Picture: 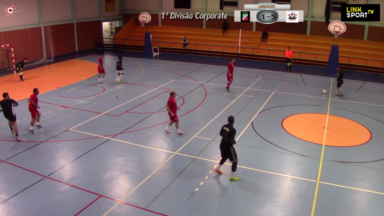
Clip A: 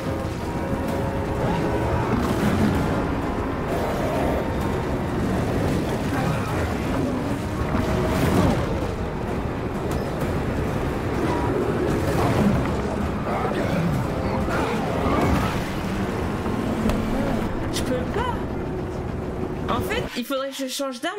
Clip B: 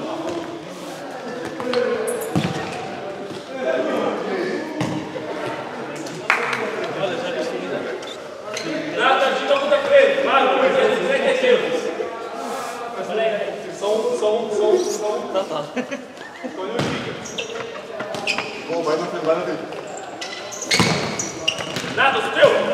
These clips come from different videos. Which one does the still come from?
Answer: B